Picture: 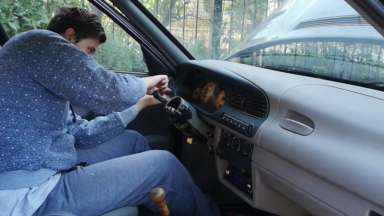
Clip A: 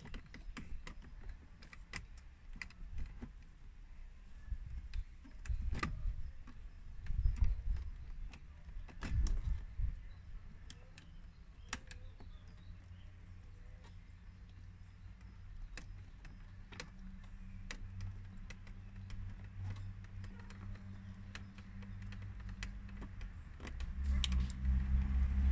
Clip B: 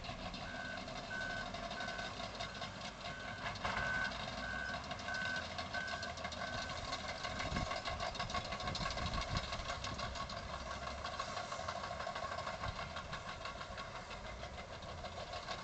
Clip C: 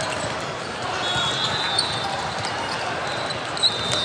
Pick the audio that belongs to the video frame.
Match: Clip A